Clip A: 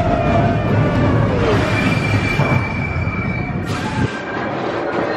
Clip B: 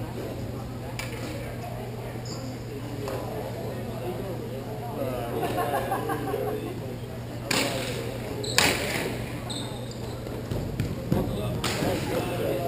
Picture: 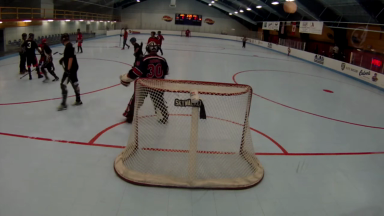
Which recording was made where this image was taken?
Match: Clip B